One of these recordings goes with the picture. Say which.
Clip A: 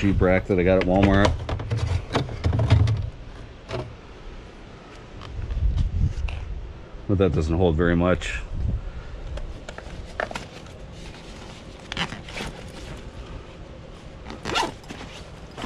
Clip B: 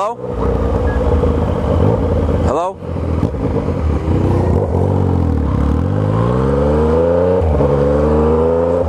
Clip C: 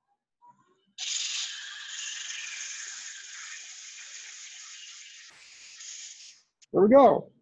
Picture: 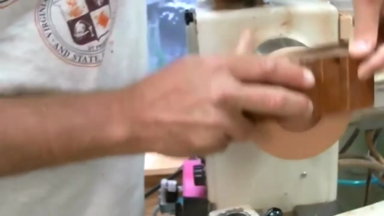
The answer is C